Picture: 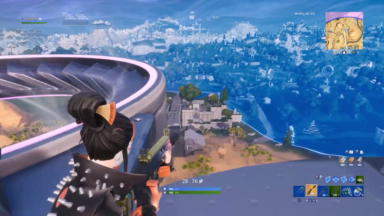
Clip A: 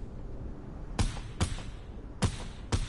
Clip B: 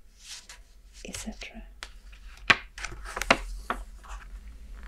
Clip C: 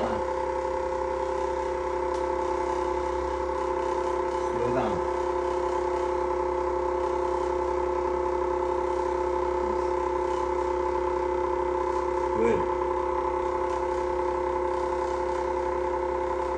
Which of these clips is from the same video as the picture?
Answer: A